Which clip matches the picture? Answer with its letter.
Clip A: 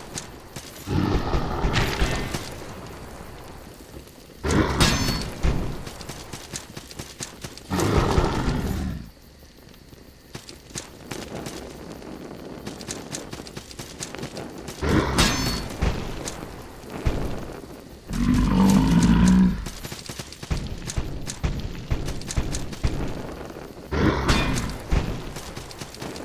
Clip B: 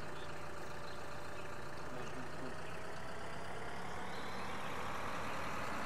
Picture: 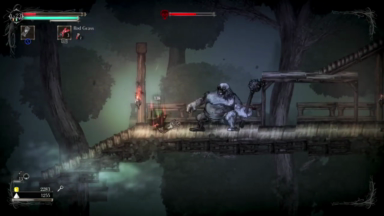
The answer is A